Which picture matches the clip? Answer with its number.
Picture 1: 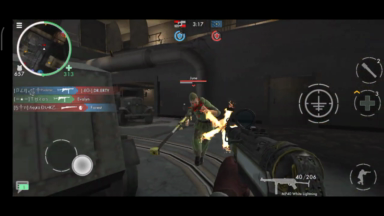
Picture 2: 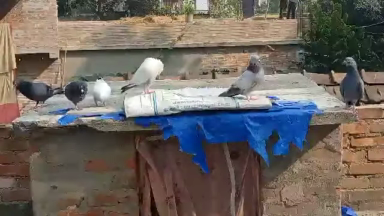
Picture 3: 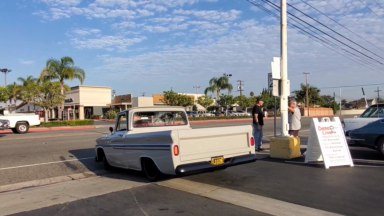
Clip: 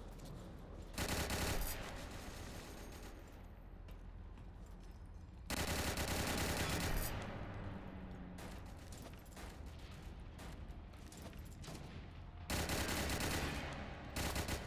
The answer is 1